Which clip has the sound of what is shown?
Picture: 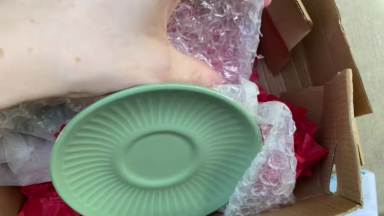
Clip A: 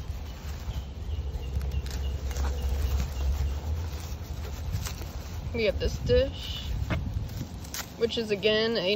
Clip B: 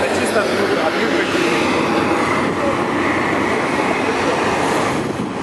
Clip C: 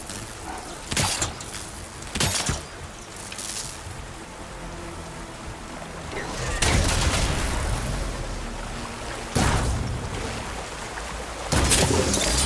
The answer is A